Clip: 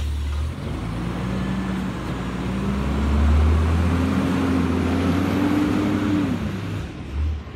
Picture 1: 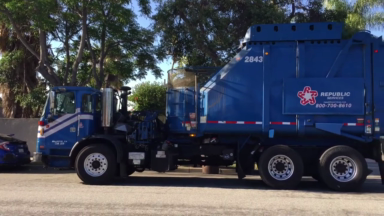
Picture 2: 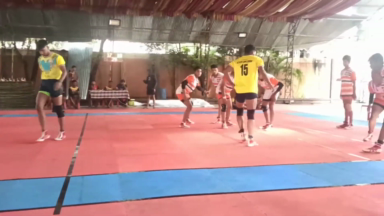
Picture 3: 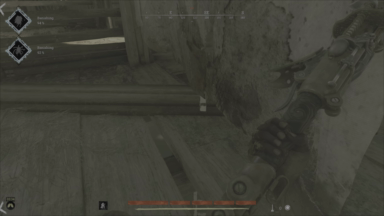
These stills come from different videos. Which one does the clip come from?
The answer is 1